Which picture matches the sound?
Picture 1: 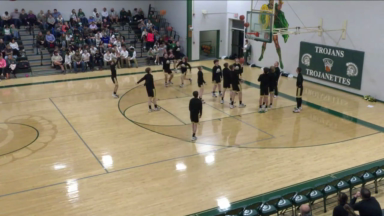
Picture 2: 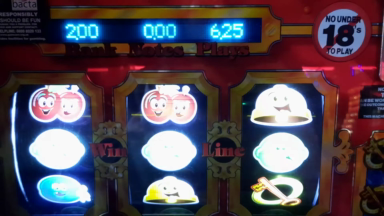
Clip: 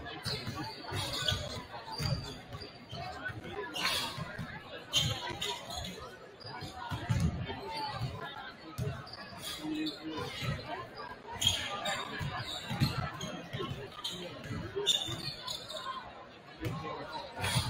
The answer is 1